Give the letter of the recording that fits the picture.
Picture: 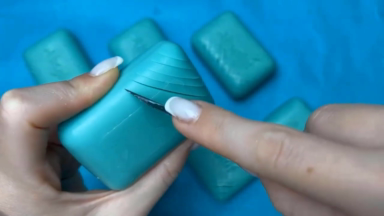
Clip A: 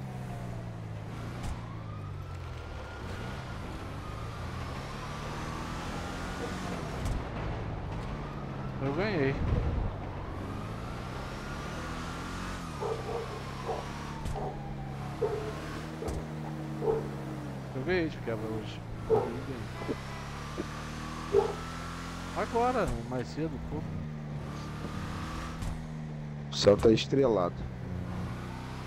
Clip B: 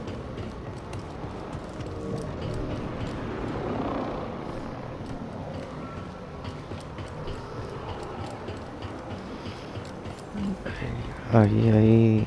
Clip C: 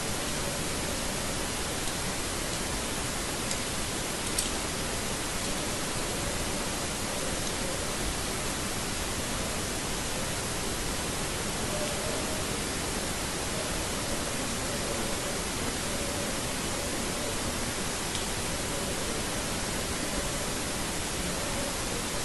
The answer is C